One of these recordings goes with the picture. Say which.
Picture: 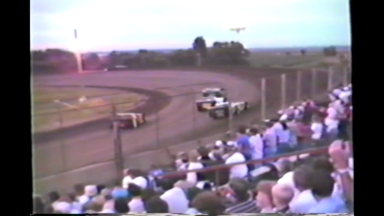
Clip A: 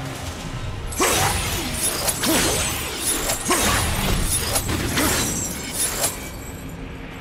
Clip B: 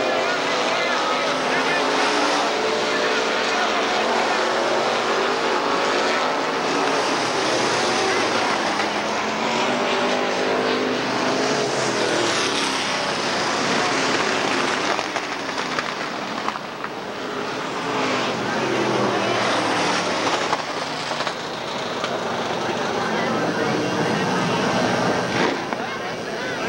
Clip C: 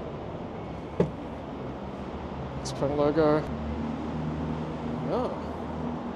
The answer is B